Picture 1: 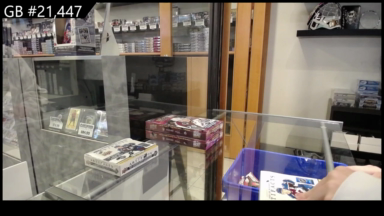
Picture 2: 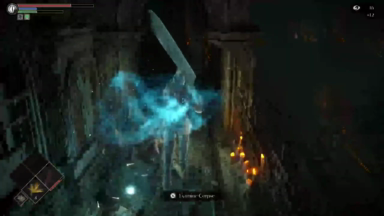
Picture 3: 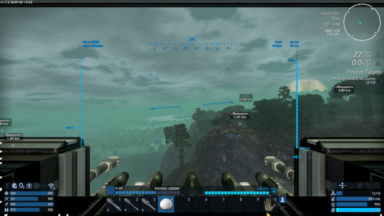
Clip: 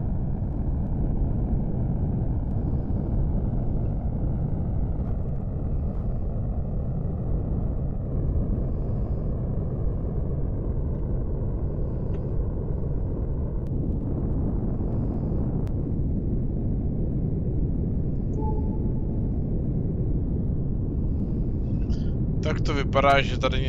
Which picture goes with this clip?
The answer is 3